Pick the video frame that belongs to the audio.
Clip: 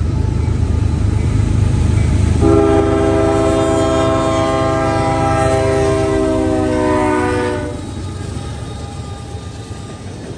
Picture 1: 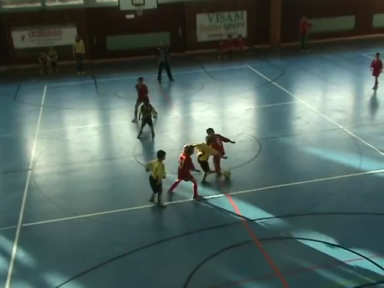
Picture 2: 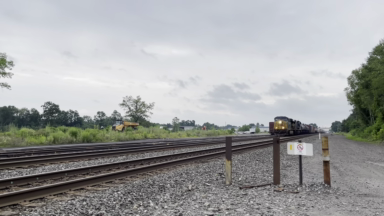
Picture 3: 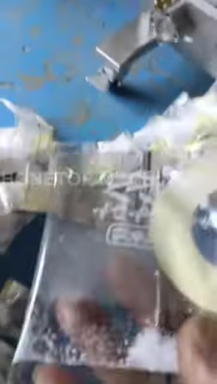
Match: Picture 2